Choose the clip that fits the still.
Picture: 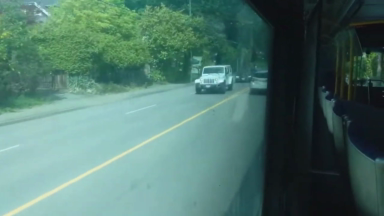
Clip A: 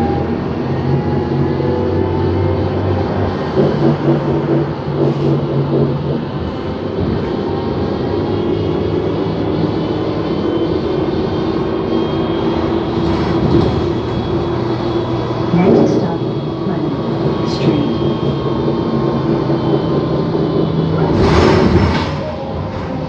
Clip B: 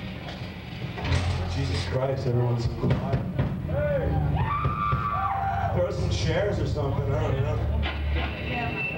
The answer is A